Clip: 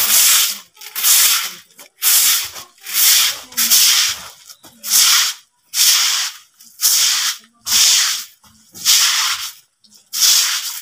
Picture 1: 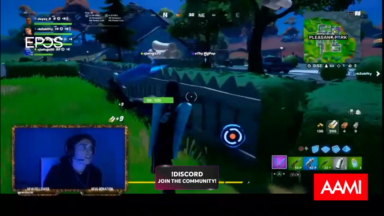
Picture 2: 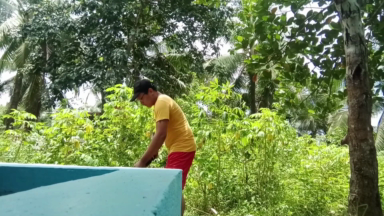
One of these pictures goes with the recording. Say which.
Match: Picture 2